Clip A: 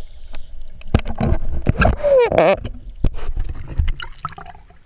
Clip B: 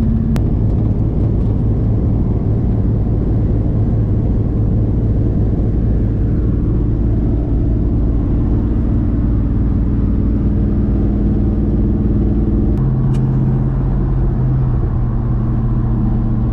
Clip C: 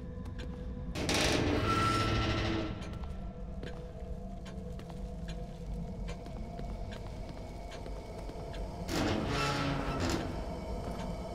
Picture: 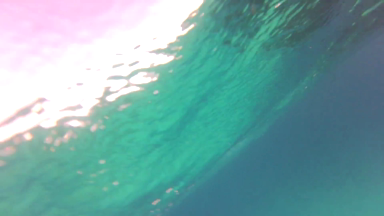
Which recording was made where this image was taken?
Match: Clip A